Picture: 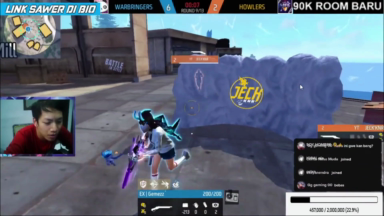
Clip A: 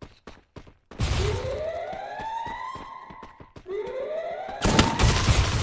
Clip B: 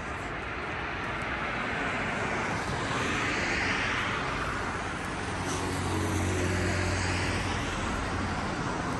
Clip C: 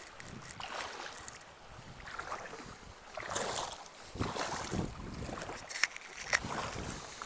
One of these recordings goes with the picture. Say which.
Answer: A